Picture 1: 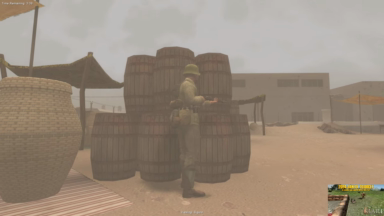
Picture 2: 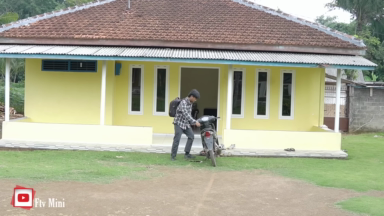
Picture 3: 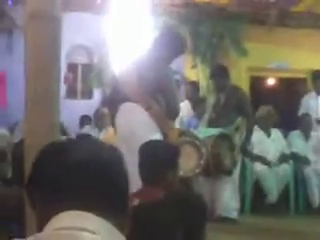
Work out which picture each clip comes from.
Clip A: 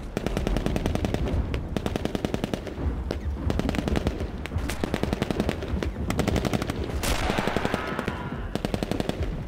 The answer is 1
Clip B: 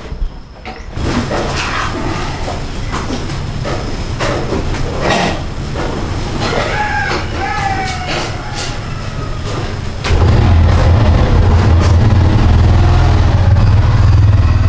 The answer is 2